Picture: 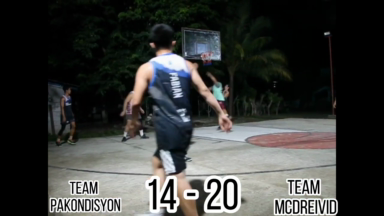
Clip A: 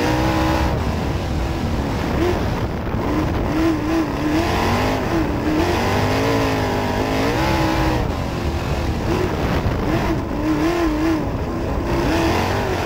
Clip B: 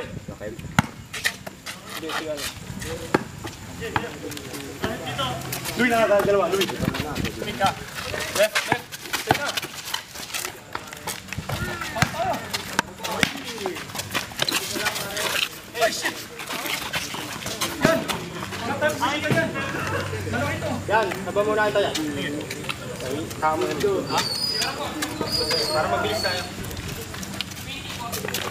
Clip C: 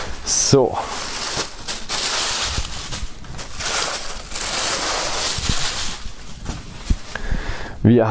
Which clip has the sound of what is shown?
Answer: B